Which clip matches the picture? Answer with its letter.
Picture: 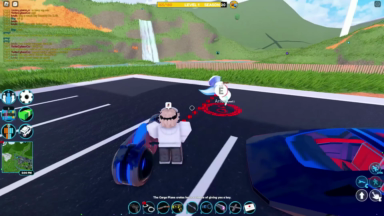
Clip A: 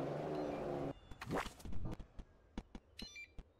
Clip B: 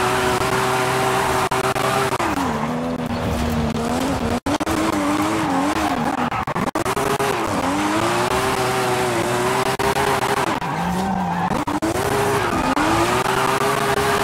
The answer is A